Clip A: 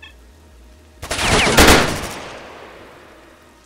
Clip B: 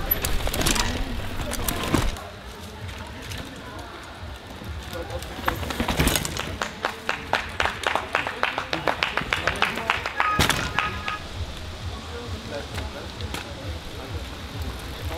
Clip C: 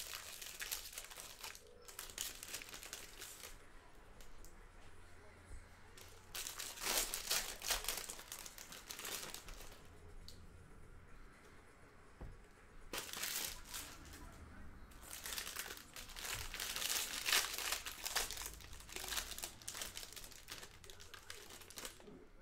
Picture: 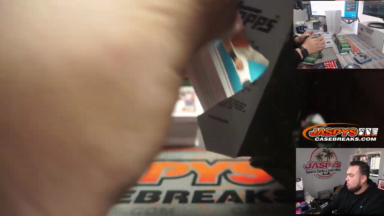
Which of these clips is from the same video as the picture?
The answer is C